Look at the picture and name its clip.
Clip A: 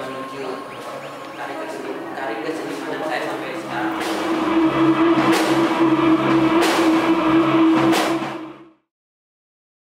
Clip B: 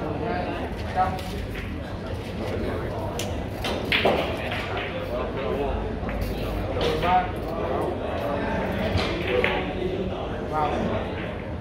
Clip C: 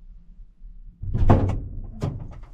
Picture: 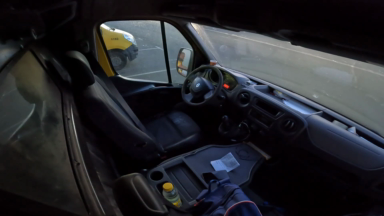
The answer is C